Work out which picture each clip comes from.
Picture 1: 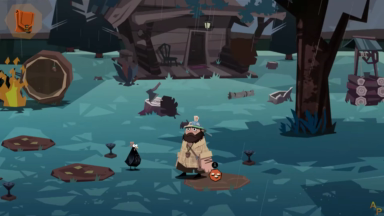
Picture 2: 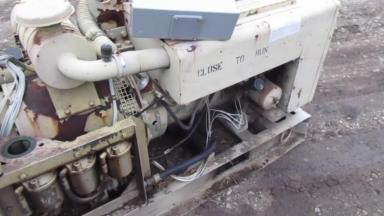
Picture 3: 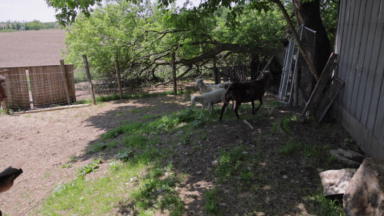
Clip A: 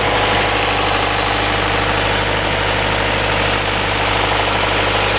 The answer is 2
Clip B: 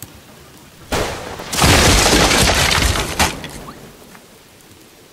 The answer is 1